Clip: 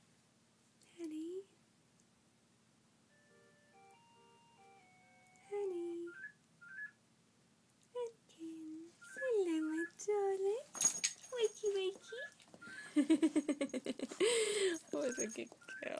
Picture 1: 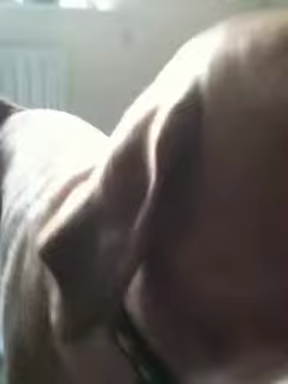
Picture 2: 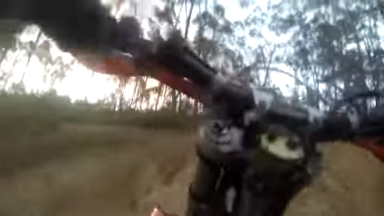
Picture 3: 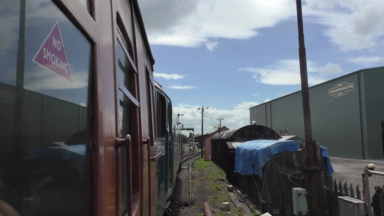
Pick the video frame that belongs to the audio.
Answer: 1